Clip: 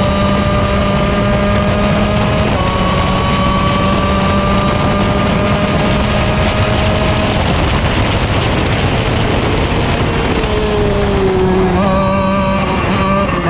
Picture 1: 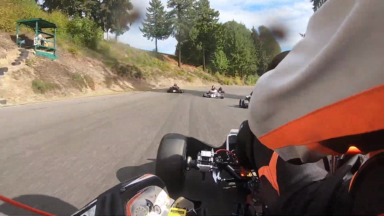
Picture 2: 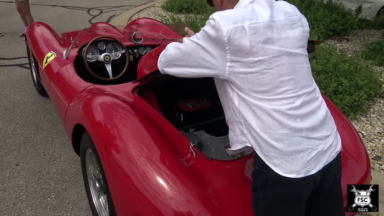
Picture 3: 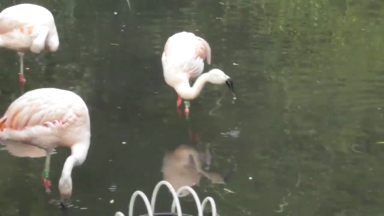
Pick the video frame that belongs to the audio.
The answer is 1